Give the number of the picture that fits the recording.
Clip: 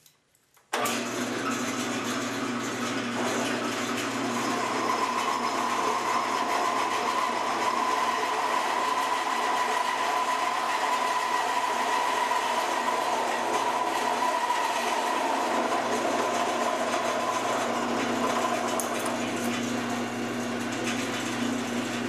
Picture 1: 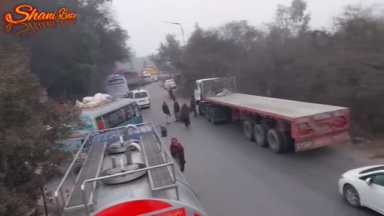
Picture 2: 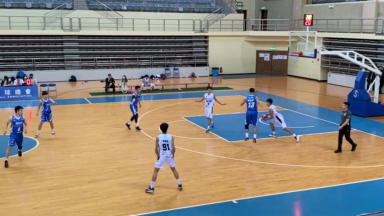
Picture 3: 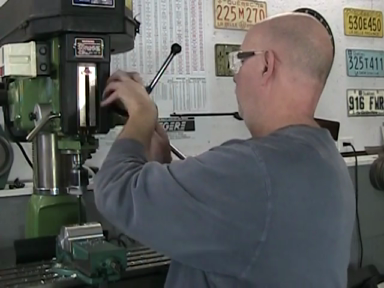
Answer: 3